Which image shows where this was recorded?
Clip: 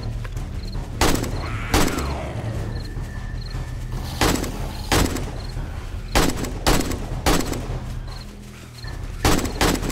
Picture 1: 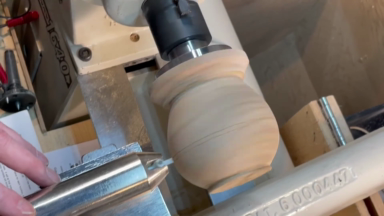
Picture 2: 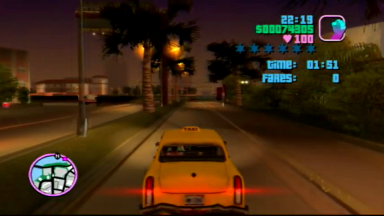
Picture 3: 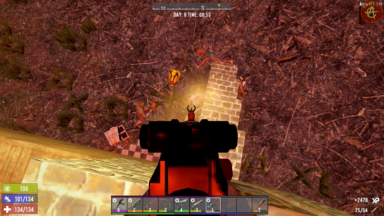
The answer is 3